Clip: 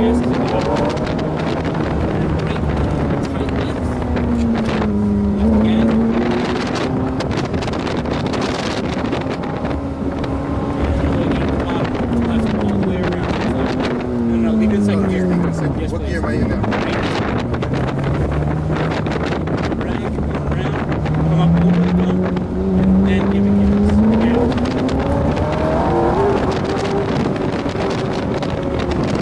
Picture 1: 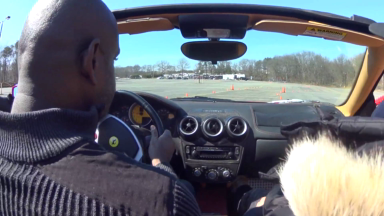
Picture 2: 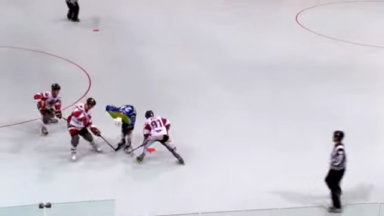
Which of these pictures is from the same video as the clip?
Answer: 1